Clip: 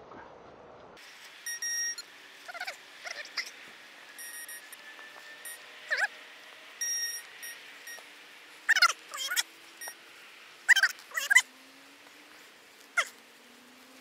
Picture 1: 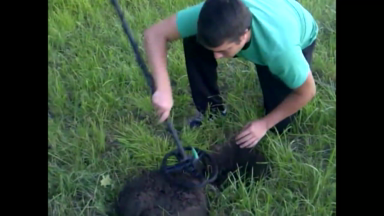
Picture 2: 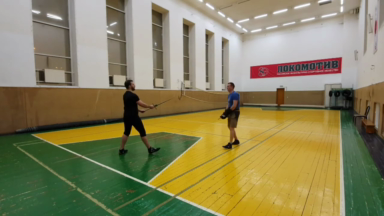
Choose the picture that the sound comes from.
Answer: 1